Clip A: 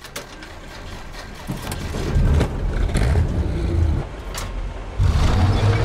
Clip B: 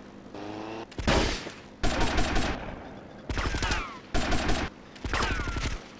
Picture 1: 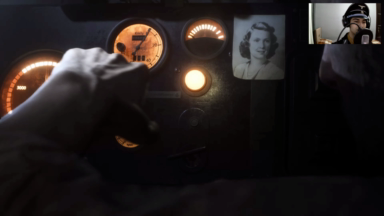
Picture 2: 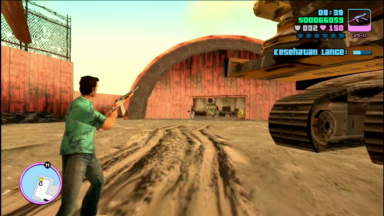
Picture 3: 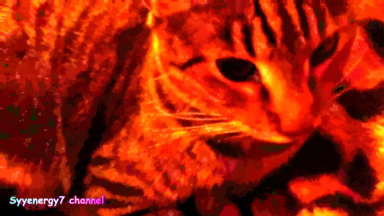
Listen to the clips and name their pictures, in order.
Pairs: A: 1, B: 2